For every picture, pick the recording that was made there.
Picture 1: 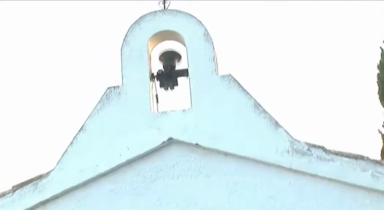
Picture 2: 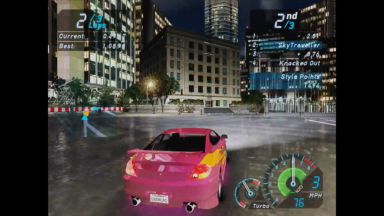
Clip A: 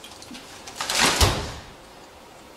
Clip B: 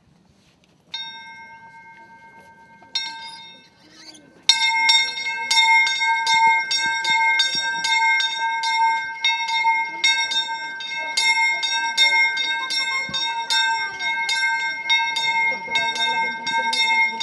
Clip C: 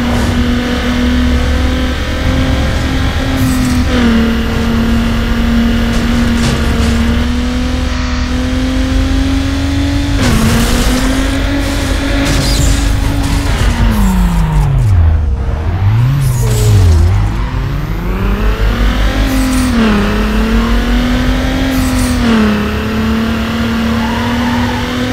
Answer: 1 B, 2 C